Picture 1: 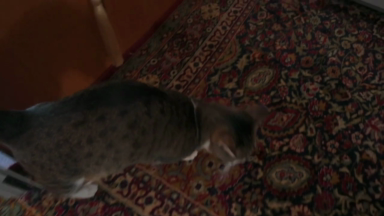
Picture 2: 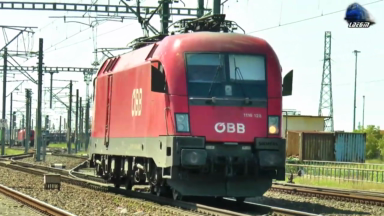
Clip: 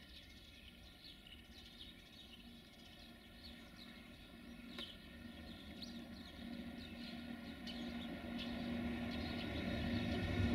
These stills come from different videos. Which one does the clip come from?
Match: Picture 2